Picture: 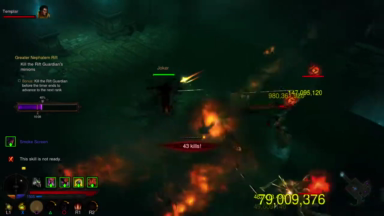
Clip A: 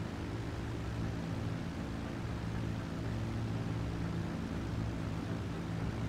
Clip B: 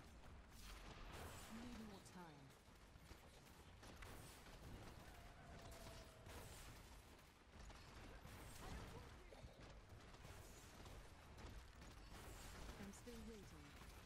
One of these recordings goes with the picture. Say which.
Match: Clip B